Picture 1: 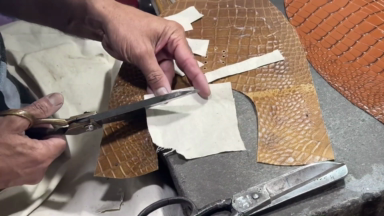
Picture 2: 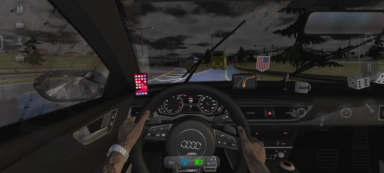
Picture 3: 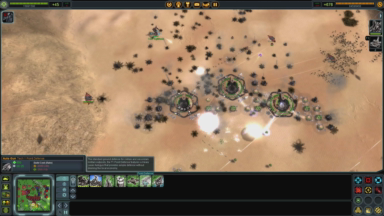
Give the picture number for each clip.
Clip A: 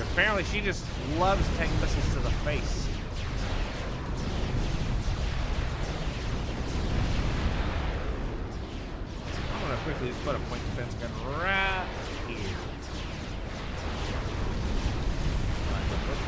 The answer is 3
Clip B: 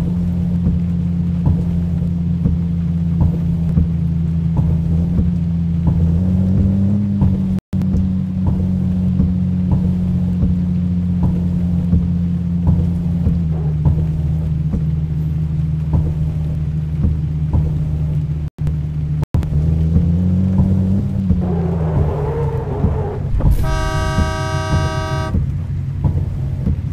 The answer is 2